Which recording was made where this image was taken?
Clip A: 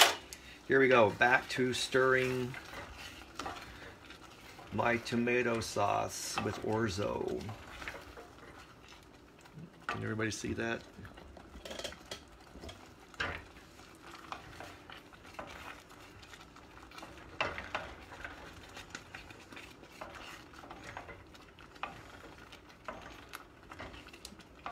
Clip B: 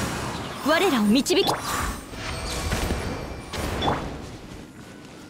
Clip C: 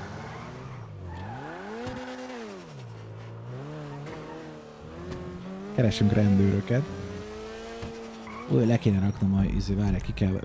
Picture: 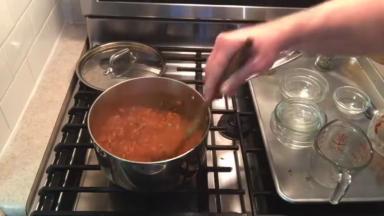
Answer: A